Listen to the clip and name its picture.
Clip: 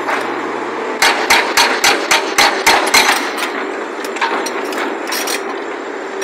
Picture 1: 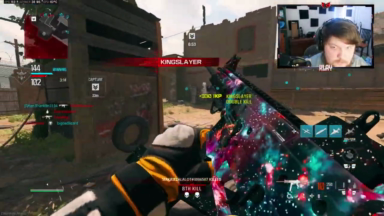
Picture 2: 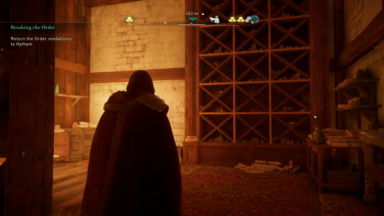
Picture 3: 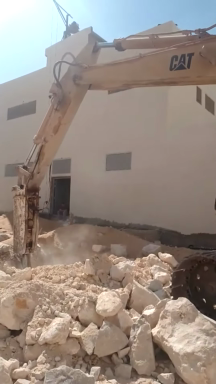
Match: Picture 3